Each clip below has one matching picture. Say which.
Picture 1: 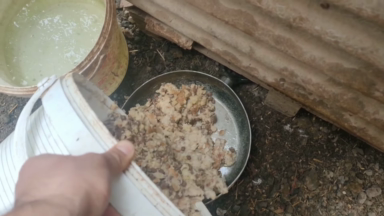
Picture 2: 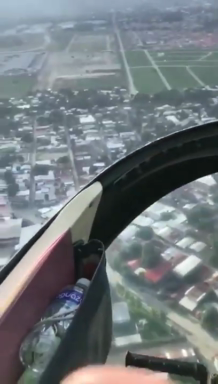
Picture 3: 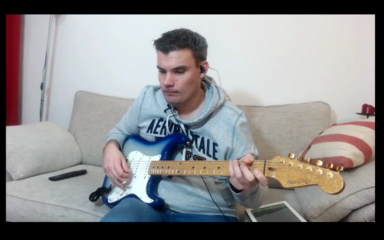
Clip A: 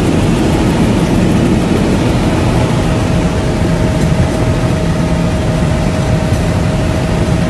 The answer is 2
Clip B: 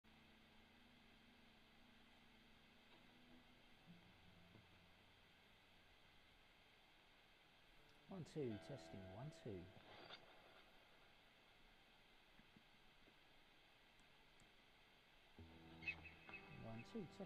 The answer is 3